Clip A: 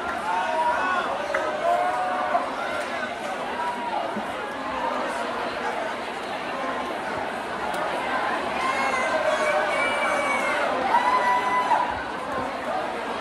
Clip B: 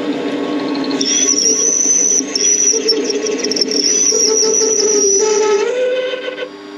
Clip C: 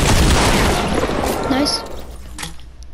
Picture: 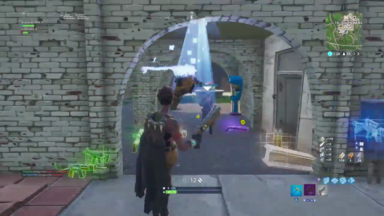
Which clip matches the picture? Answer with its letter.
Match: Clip C